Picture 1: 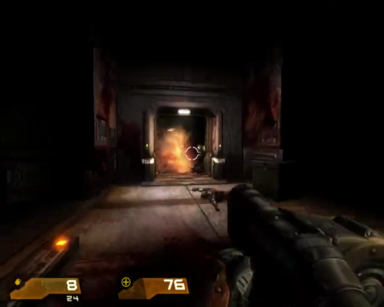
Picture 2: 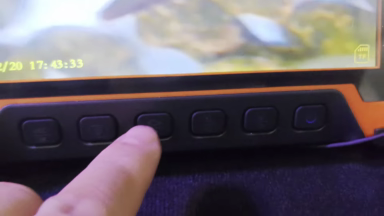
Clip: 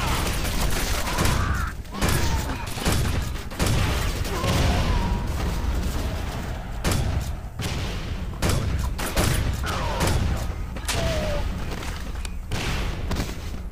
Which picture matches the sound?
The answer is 1